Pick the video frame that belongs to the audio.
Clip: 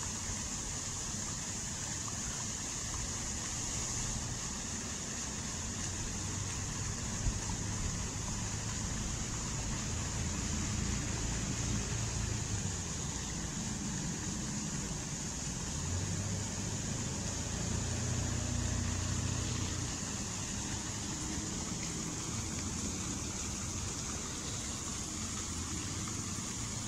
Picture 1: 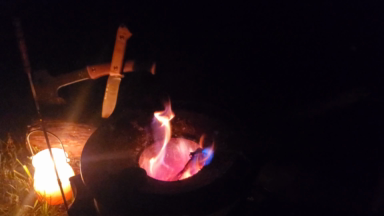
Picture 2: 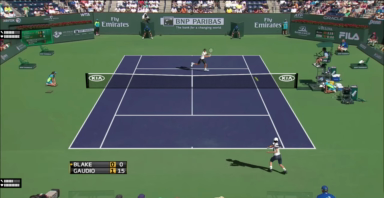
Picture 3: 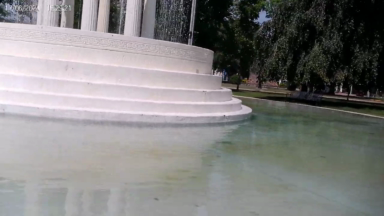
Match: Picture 3